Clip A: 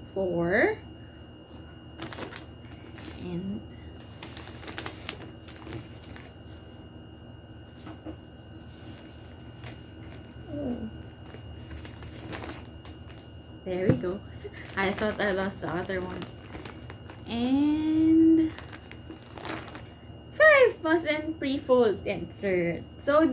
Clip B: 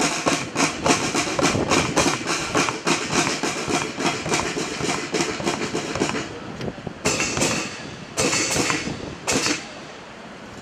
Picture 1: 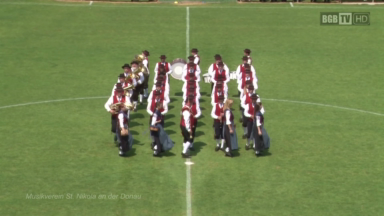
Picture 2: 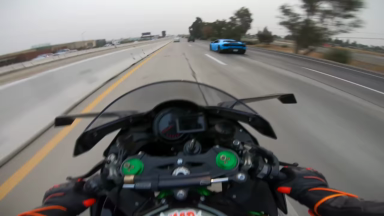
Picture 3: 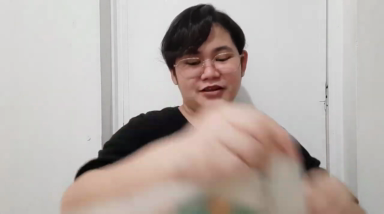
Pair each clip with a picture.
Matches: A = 3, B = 1